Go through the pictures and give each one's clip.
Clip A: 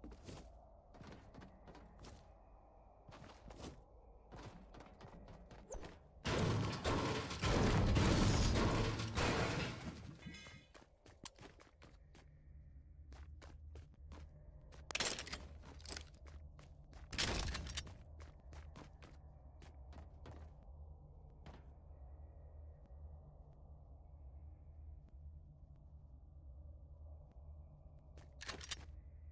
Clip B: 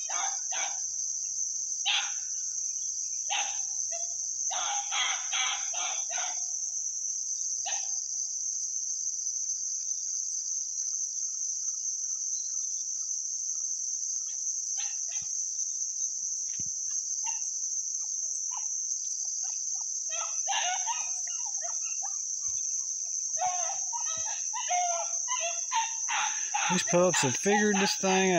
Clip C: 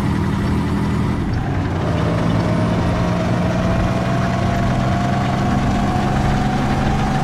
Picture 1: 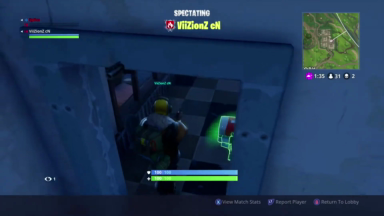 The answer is A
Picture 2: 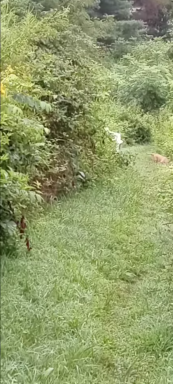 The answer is B